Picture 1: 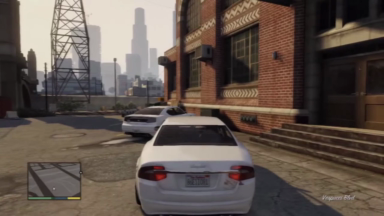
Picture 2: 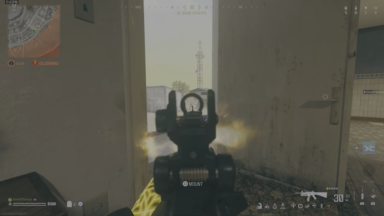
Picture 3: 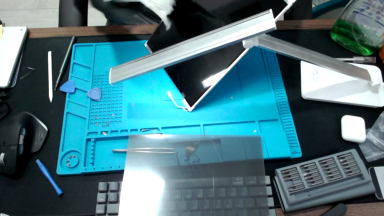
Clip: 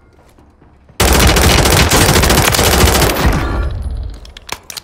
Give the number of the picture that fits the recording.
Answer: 2